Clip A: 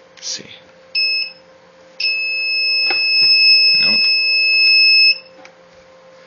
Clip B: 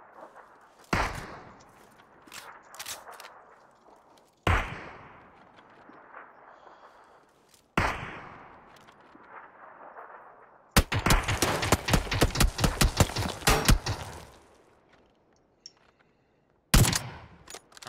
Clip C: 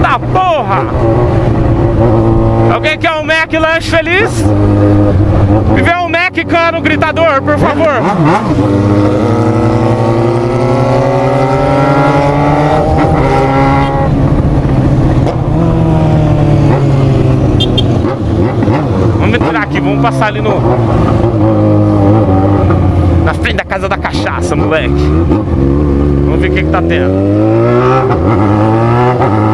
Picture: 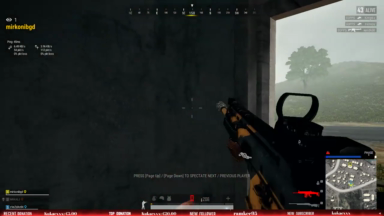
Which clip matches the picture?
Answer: B